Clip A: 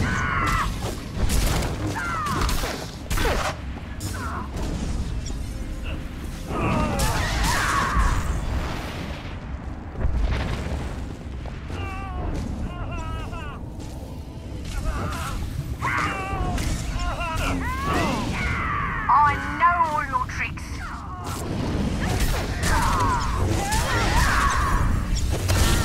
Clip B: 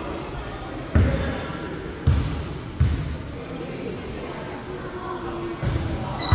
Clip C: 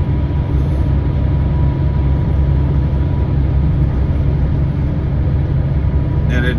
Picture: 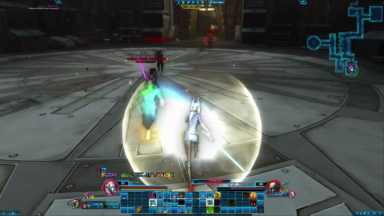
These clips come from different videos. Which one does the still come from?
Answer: A